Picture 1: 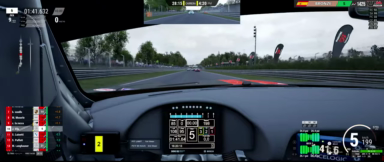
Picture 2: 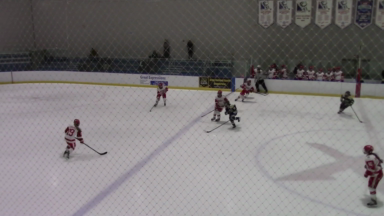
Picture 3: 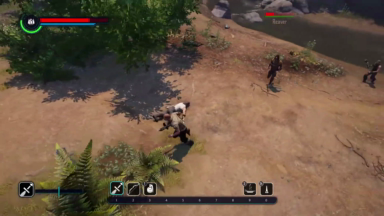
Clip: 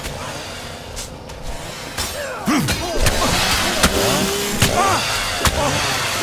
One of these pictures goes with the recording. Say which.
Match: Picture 3